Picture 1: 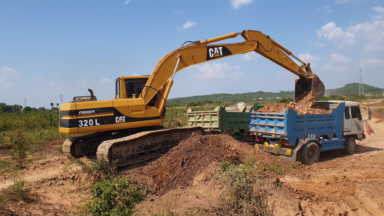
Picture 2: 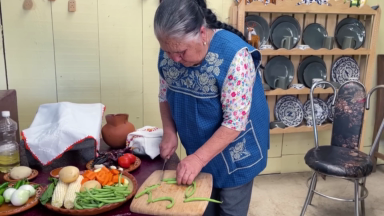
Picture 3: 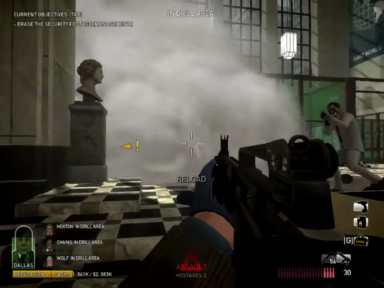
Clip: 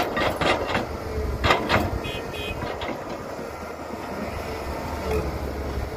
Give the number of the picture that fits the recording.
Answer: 1